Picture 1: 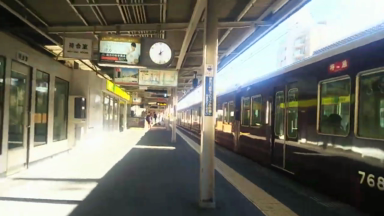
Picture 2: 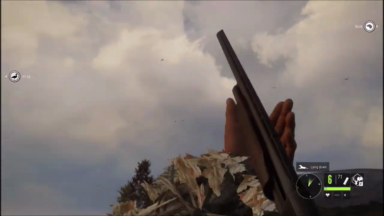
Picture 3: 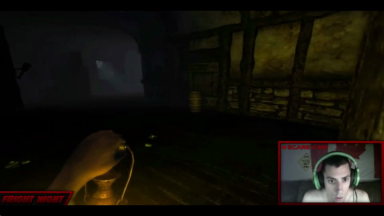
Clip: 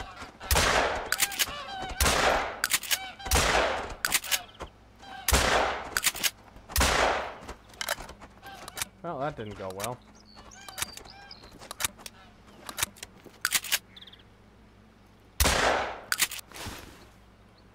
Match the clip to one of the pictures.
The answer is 2